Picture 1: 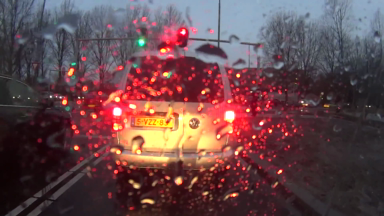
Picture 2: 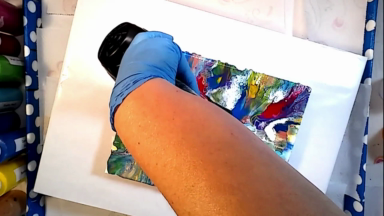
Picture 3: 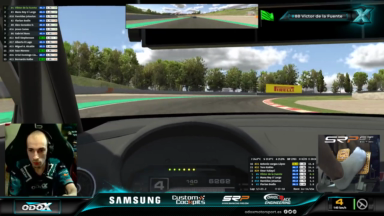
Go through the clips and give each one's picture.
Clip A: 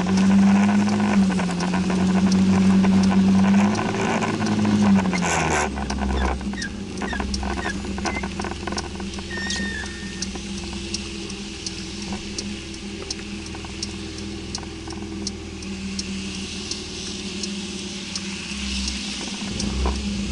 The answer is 1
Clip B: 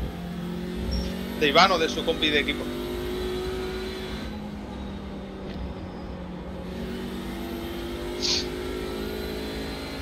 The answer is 3